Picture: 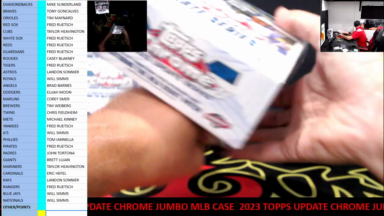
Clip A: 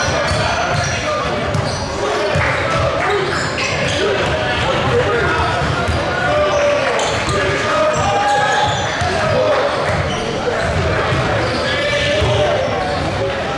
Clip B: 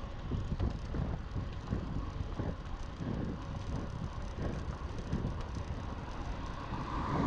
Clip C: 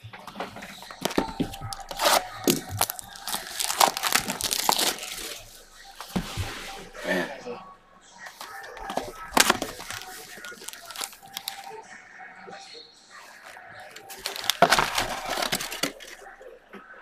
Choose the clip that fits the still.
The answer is C